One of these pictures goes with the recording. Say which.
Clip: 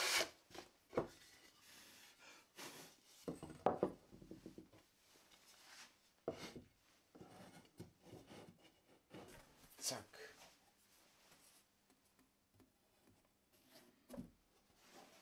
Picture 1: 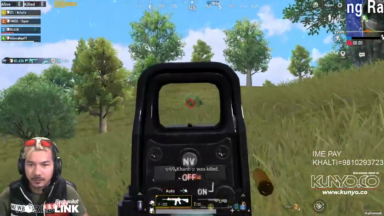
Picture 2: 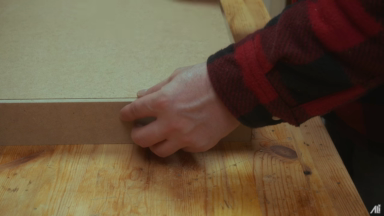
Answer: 2